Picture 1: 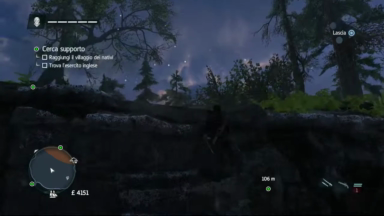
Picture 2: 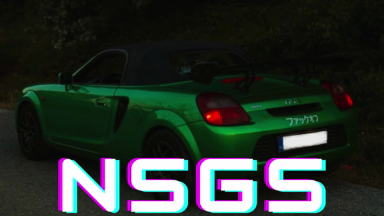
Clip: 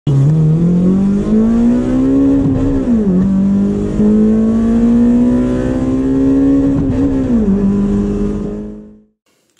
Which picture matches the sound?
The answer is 2